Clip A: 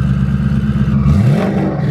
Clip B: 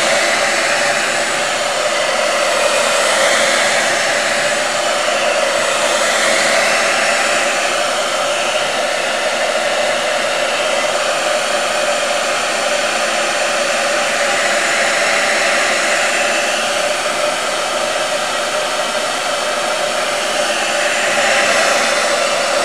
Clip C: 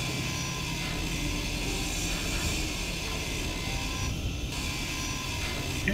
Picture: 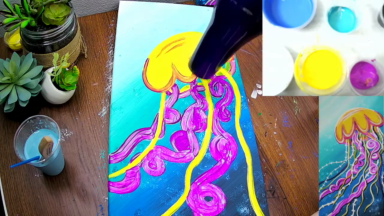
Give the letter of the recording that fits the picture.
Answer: B